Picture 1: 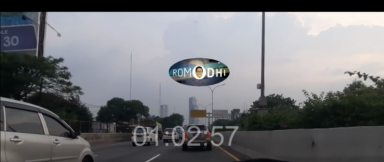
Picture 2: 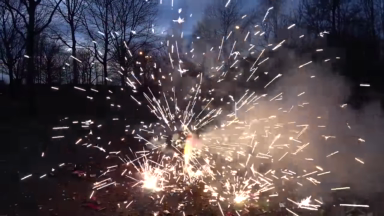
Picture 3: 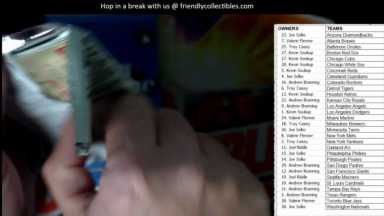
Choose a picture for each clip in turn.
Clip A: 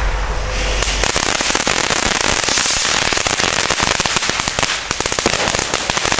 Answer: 2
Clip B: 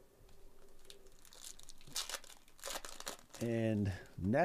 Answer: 3